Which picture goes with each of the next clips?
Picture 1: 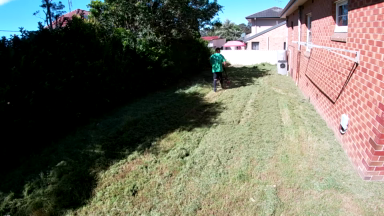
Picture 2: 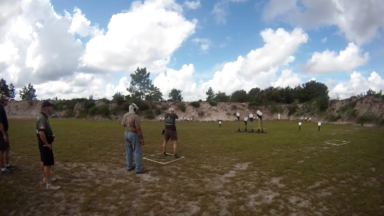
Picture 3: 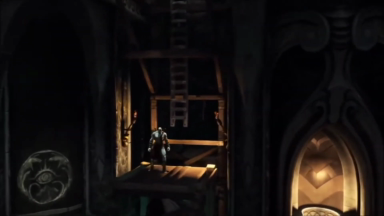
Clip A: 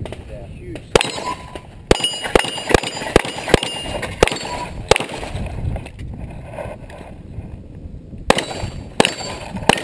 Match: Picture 2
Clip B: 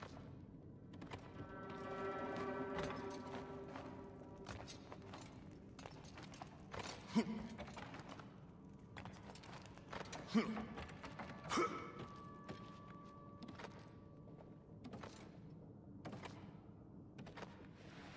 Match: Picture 3